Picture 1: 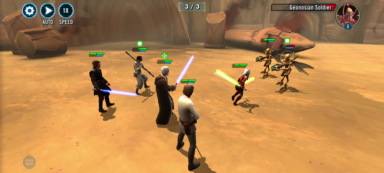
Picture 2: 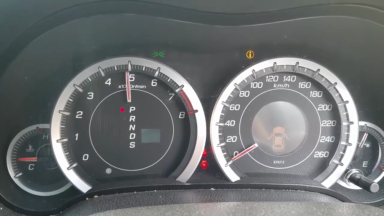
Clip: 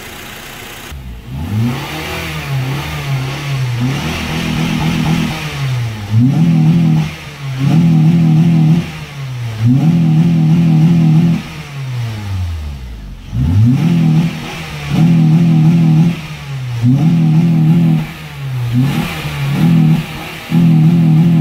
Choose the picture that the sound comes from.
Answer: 2